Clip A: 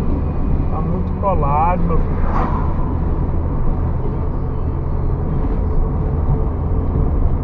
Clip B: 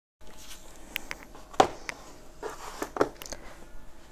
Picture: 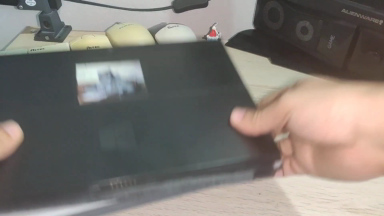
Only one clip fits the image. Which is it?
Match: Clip B